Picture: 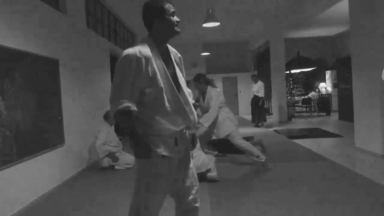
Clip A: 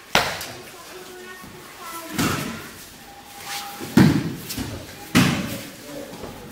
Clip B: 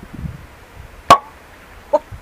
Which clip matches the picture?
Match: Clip A